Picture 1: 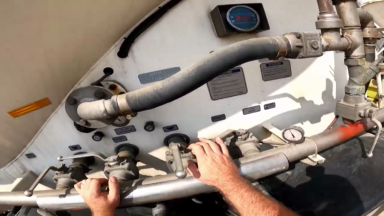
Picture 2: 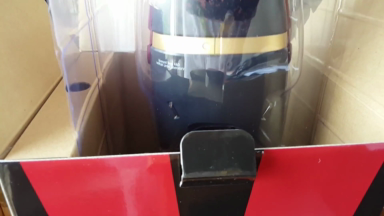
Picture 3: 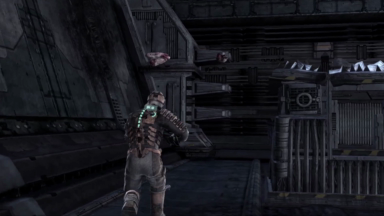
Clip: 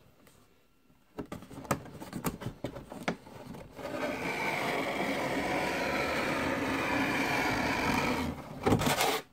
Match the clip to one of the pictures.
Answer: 2